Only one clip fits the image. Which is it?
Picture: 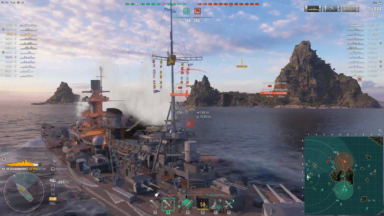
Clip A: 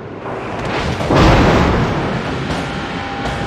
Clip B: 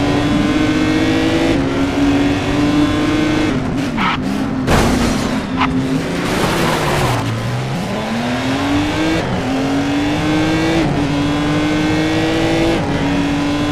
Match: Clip A